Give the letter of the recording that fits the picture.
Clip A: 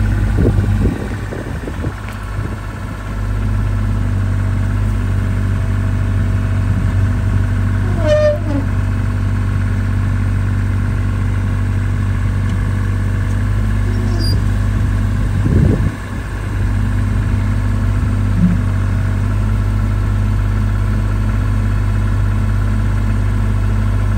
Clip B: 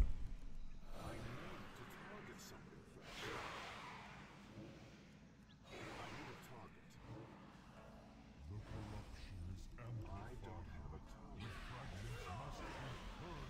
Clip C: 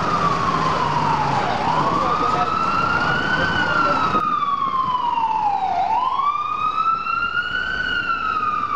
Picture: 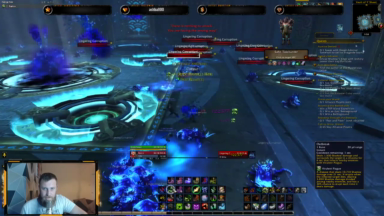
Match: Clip B